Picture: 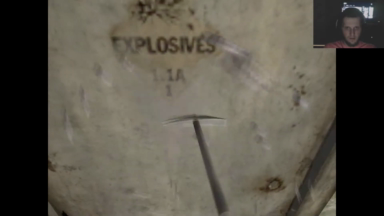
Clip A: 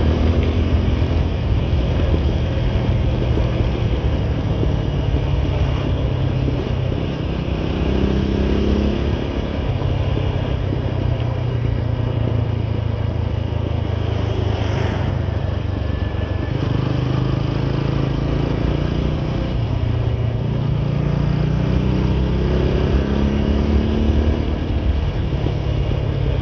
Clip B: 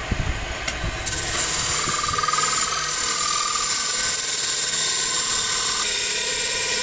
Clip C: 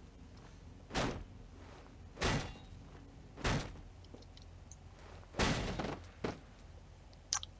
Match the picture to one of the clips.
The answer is C